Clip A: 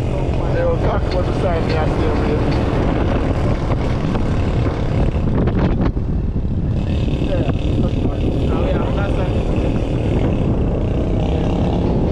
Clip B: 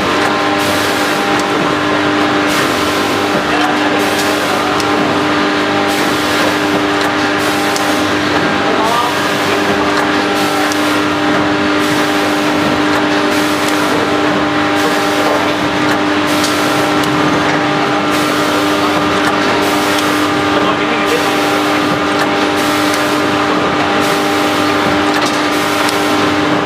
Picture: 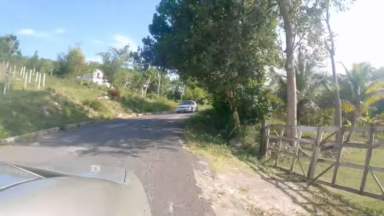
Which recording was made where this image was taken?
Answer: A